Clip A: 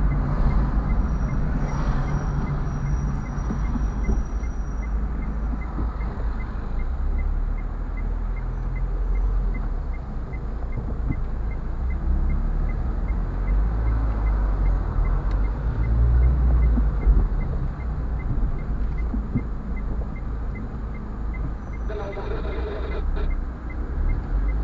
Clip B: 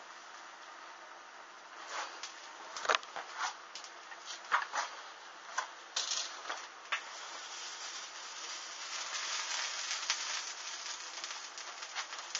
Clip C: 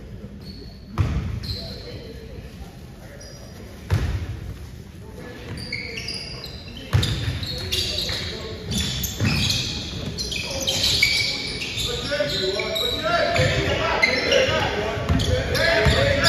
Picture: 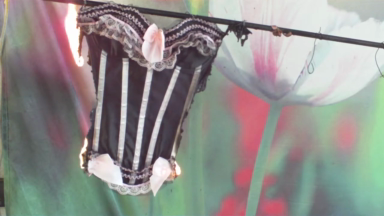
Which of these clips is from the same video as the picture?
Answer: B